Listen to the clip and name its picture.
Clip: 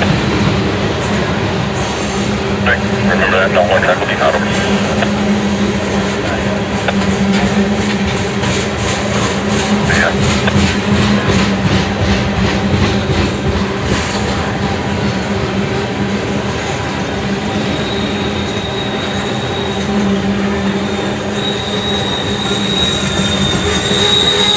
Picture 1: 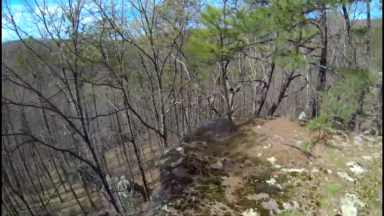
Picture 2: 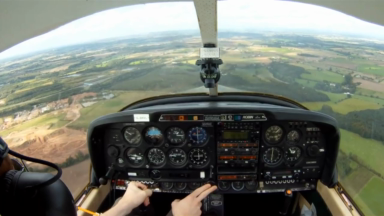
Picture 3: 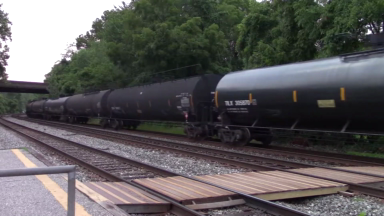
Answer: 3